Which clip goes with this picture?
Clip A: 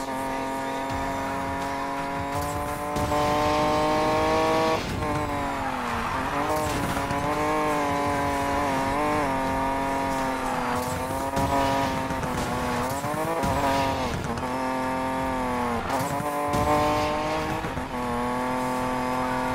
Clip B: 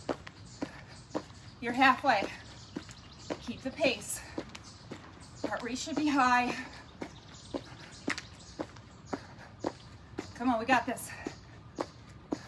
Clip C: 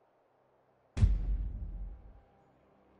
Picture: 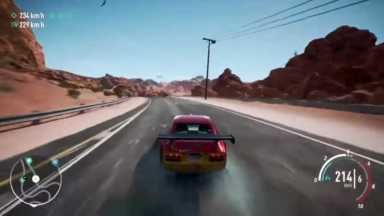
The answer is A